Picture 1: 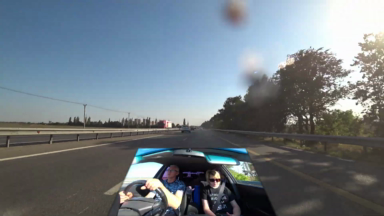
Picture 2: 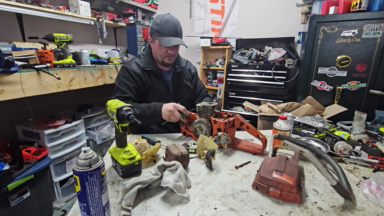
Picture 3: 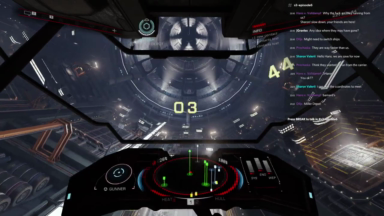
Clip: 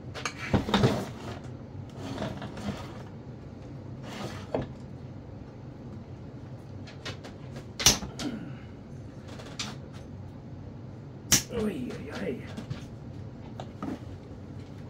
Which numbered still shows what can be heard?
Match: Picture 2